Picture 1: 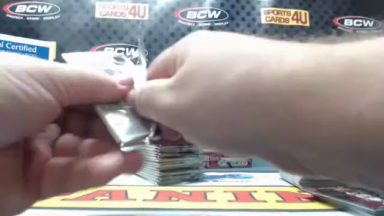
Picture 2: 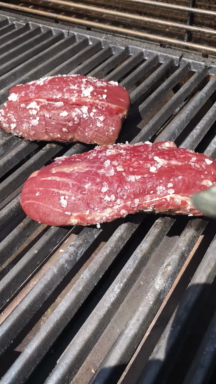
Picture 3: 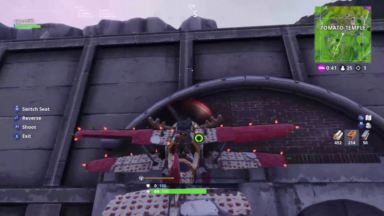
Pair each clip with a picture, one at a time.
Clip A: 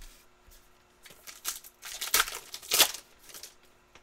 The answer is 1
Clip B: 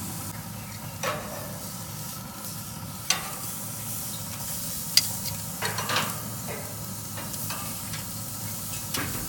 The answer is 2